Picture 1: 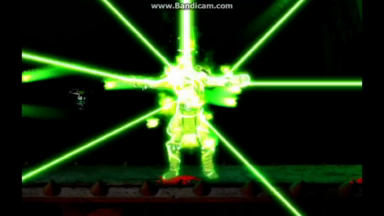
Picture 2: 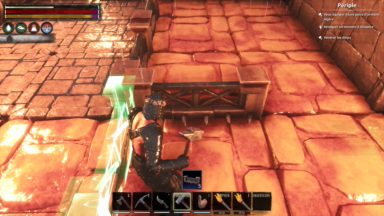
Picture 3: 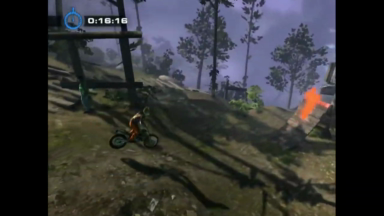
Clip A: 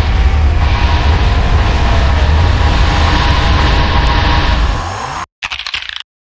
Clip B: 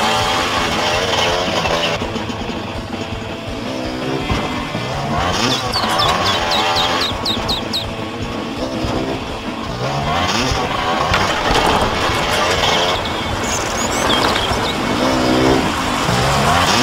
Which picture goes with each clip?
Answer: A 1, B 3